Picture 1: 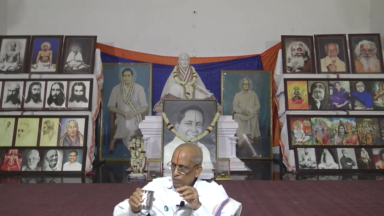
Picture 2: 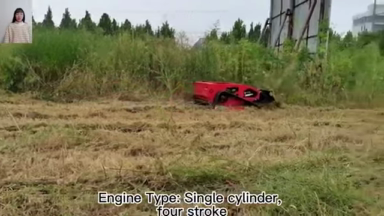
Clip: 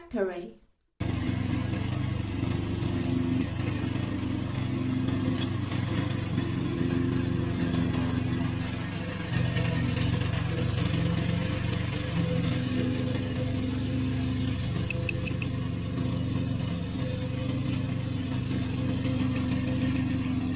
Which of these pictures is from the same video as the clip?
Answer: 2